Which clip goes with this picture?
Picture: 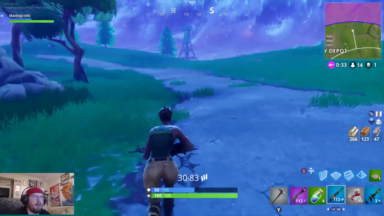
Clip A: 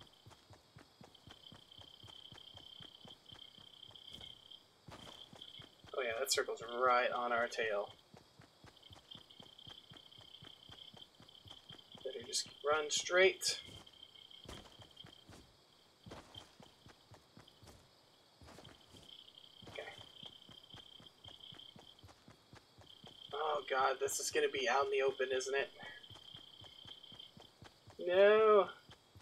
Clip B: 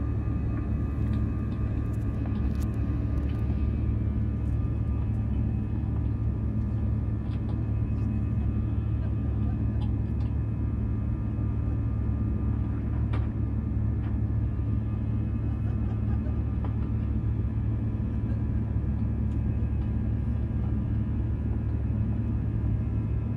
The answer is A